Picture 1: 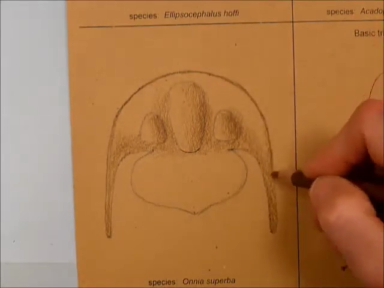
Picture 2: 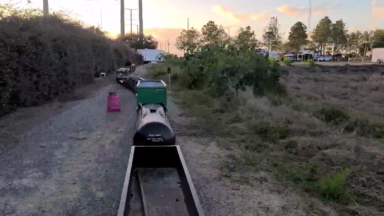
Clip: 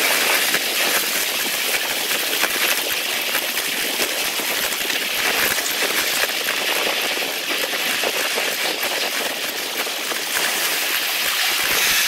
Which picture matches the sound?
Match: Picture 2